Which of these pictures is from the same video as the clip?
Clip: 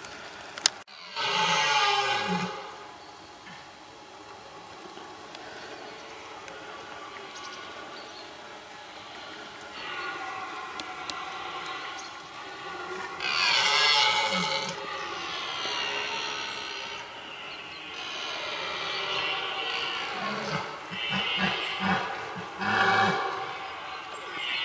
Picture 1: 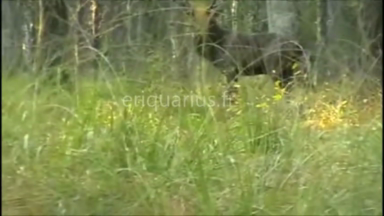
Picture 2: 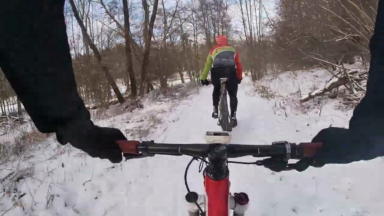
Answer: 1